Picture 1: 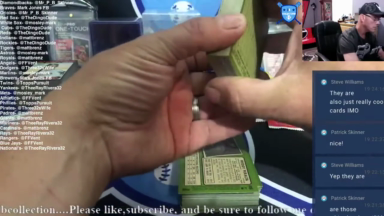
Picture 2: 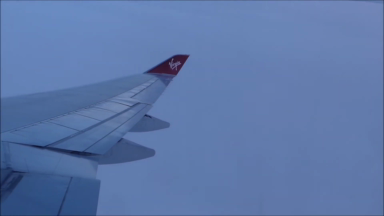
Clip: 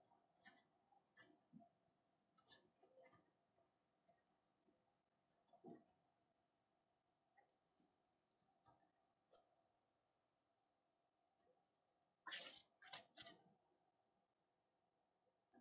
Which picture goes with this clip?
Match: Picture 1